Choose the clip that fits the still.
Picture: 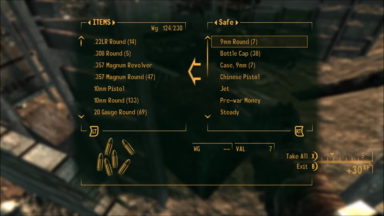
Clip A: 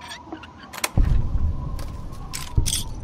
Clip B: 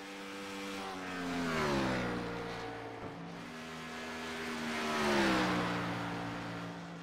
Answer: A